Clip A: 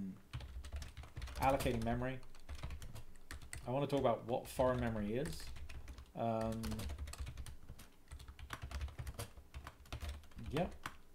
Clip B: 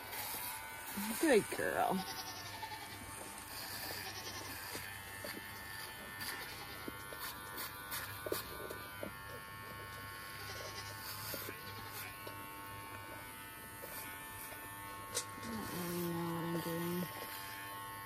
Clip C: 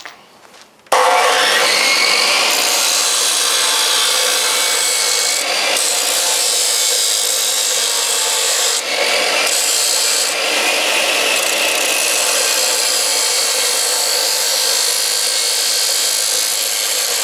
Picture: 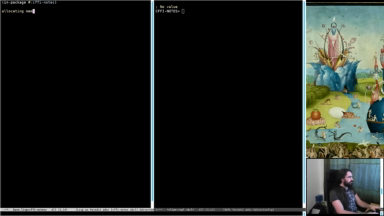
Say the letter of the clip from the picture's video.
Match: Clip A